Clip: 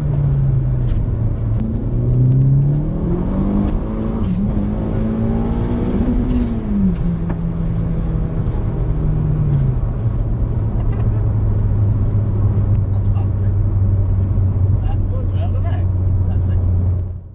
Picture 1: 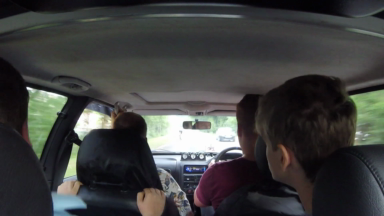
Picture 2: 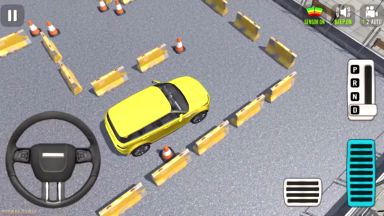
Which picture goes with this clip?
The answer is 1